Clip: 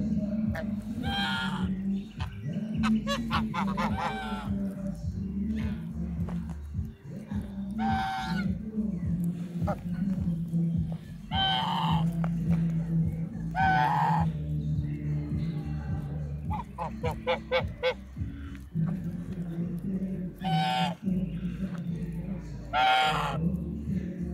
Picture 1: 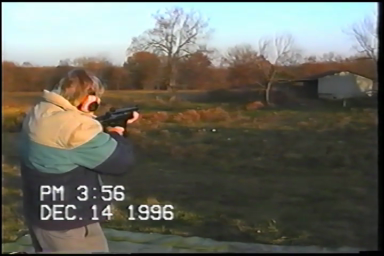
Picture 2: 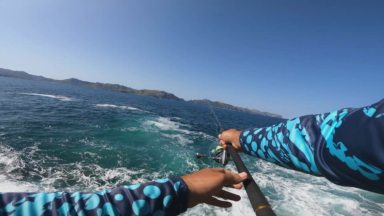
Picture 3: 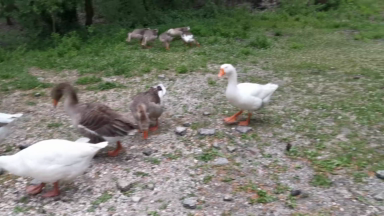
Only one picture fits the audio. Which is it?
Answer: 3